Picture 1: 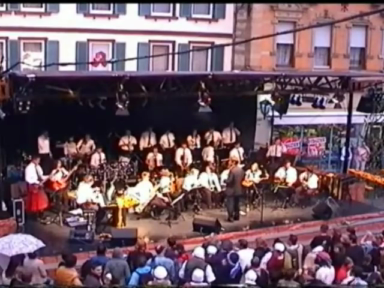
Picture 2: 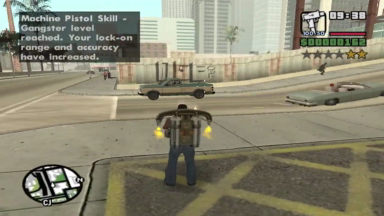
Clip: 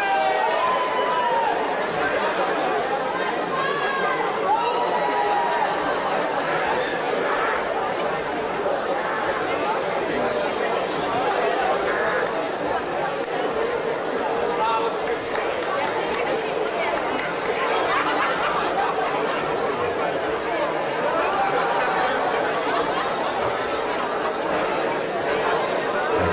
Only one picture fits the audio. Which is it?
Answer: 1